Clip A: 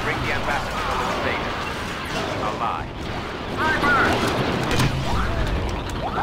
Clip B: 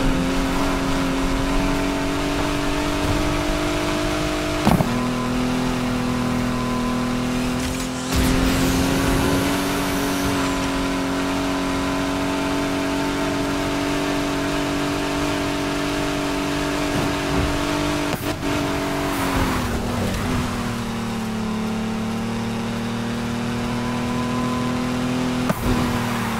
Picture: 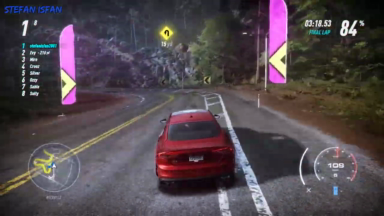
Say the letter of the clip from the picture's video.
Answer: B